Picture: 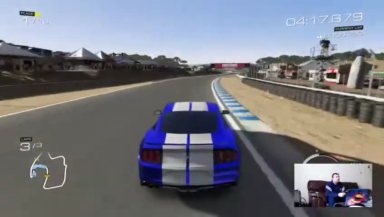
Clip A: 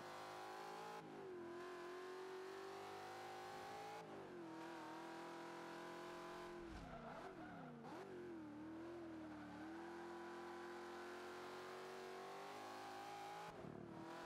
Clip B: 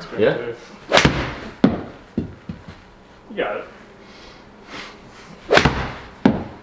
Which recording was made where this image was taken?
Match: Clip A